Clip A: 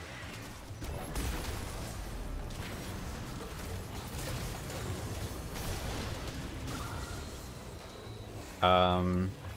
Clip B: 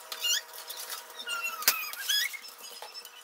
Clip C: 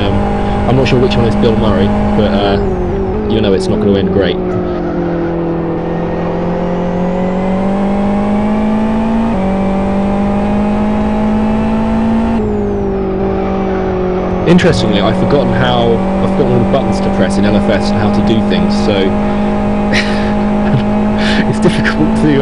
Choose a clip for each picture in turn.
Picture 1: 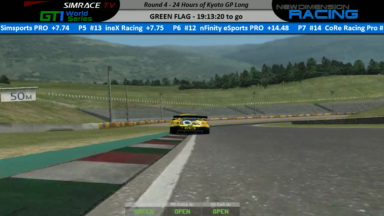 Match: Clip C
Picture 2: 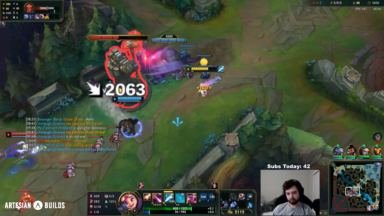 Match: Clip A